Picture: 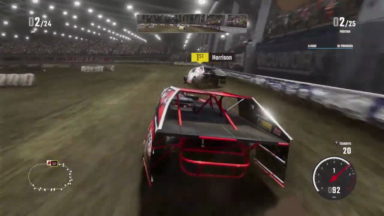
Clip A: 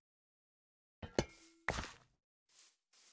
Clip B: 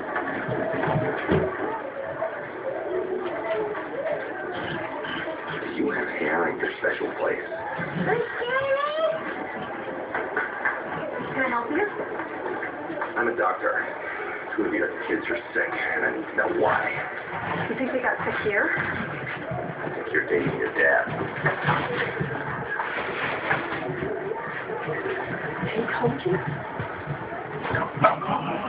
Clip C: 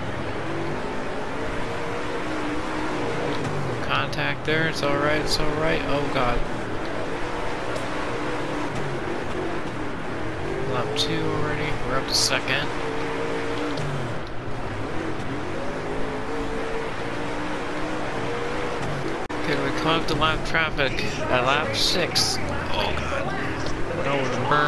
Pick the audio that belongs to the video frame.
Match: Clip C